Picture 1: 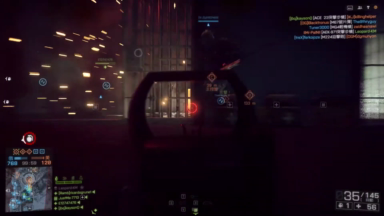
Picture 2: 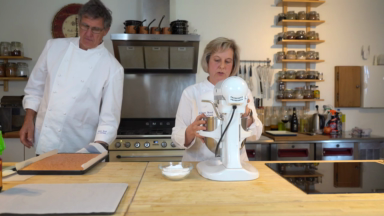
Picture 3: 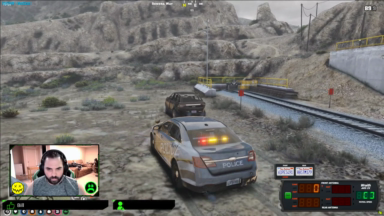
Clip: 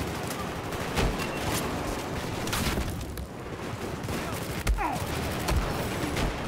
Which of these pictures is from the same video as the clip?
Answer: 1